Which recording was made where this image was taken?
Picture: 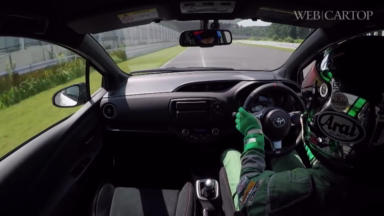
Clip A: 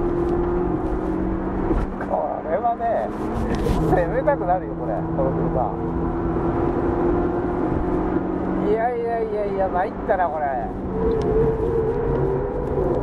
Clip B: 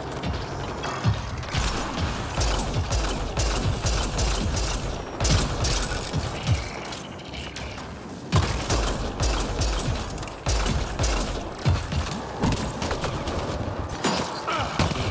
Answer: A